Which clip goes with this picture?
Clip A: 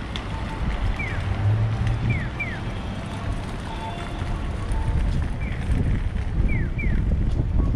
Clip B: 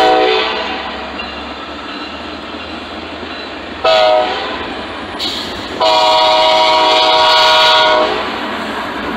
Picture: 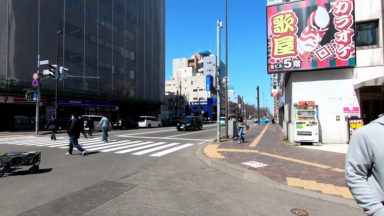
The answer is A